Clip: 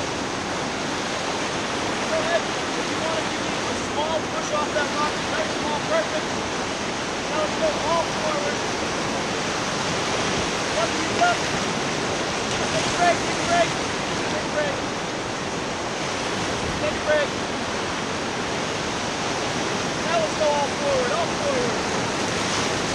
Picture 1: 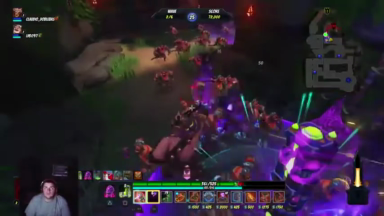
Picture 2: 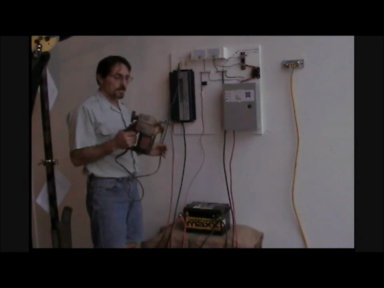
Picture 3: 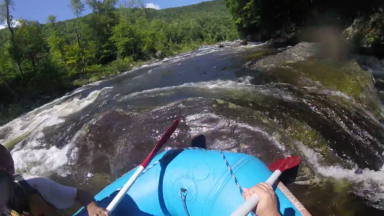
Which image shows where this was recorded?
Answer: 3